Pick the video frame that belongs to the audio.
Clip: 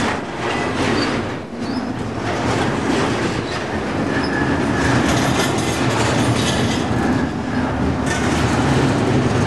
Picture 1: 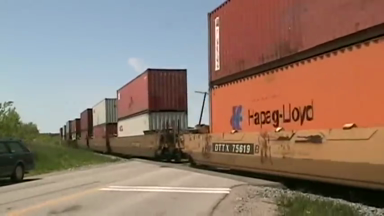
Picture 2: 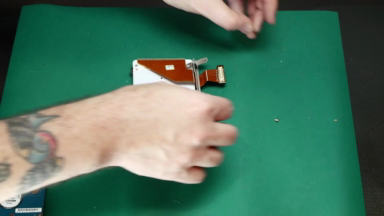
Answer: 1